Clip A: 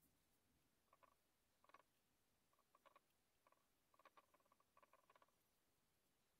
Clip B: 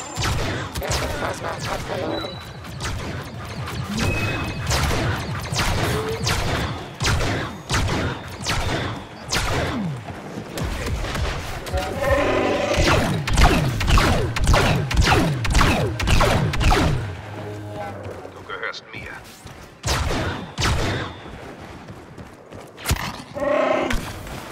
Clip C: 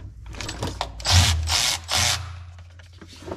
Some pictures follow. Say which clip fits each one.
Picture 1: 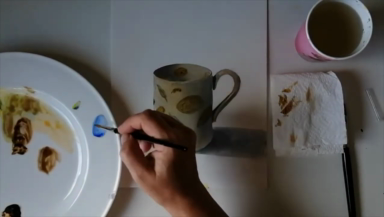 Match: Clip A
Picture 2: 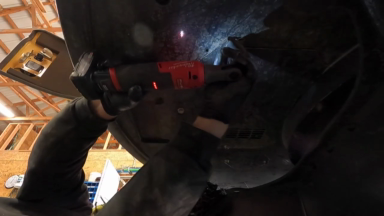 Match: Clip C